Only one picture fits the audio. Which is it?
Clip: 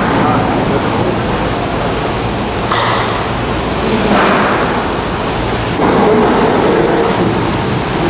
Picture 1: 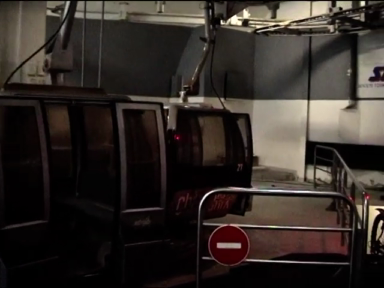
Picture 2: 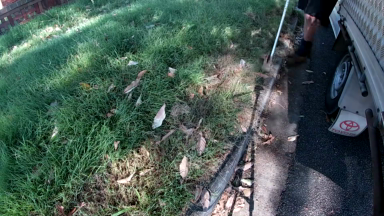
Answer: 1